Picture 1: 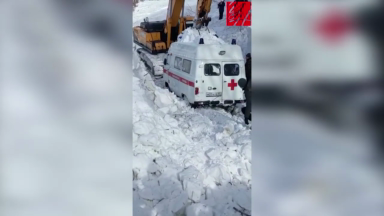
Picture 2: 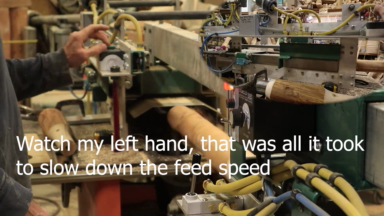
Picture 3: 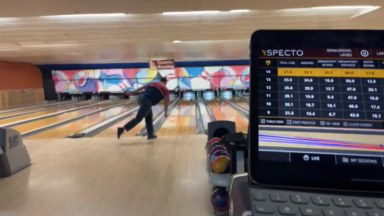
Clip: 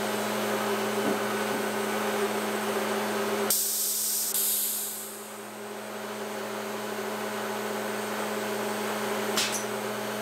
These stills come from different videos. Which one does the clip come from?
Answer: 2